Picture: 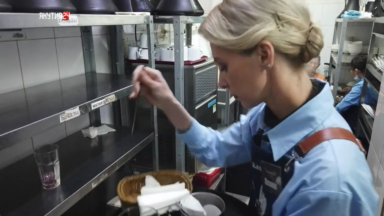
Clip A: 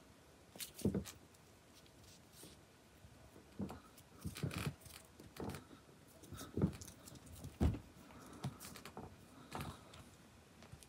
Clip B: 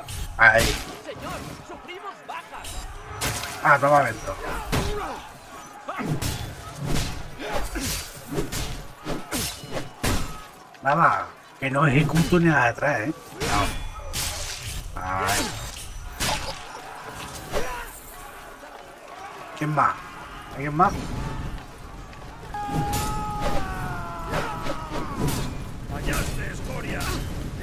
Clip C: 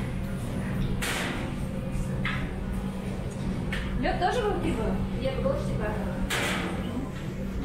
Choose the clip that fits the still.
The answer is C